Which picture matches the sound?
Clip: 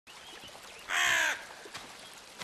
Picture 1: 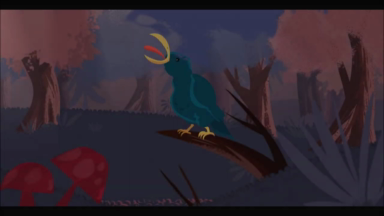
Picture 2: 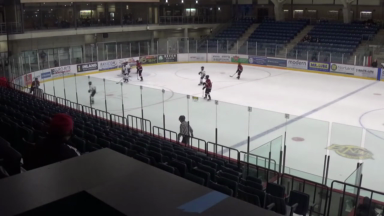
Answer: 1